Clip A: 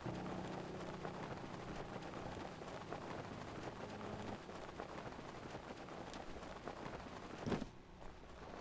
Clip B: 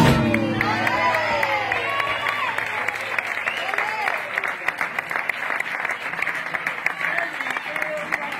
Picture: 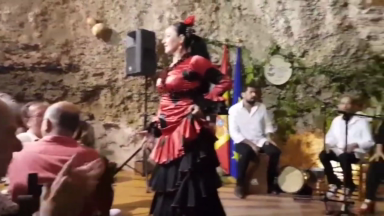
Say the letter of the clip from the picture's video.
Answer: B